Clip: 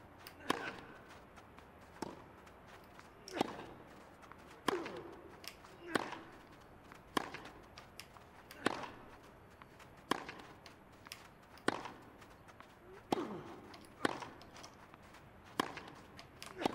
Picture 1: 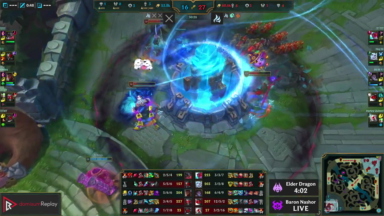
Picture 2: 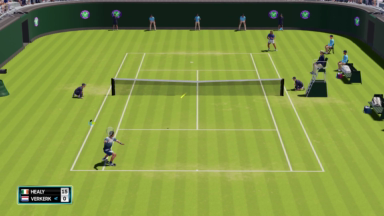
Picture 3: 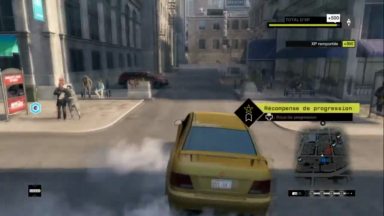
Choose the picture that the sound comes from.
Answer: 2